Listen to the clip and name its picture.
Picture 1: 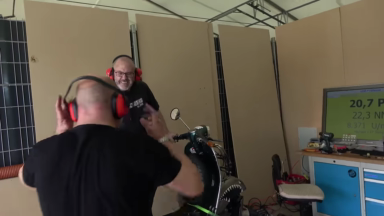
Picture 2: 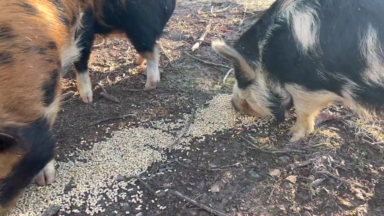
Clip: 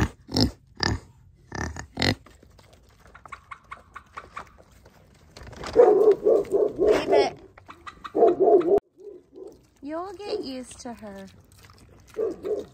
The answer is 2